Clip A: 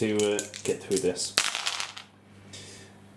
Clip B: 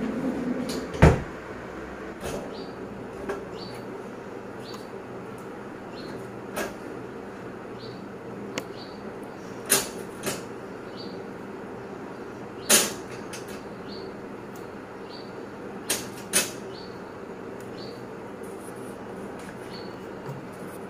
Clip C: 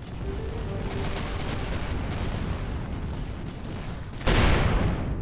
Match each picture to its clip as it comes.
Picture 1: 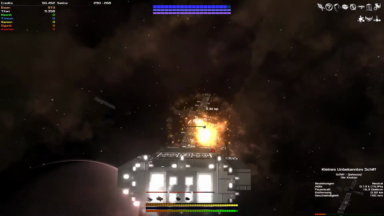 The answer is C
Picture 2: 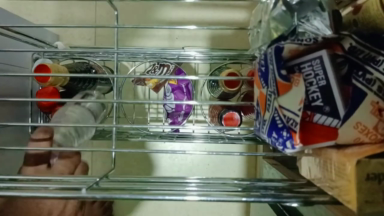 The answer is B